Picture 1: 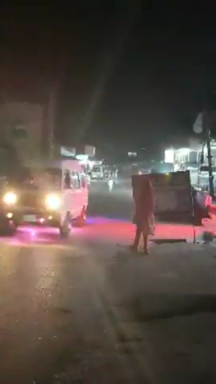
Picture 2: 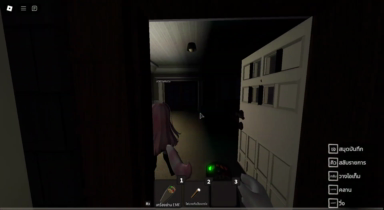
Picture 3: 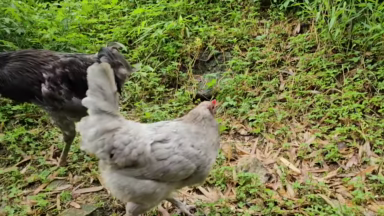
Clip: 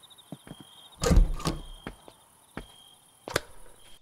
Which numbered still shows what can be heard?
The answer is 2